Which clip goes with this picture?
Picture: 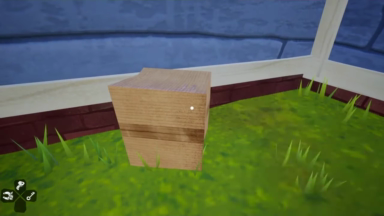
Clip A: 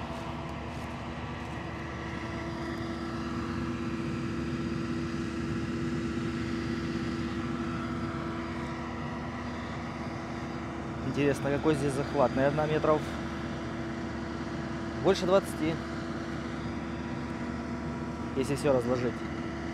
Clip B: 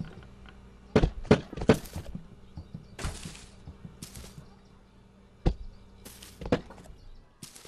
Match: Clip B